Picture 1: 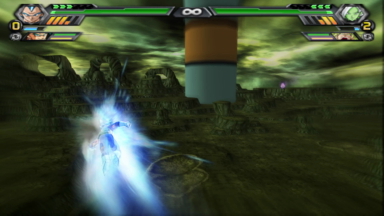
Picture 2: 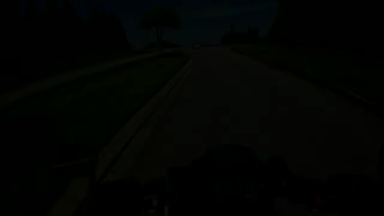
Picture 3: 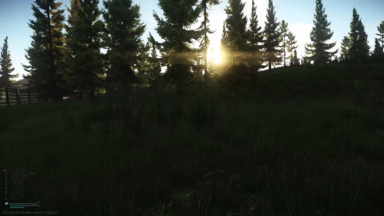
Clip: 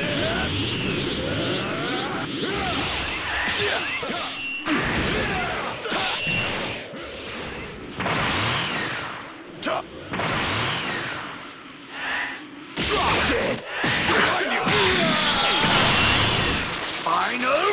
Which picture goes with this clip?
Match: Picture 1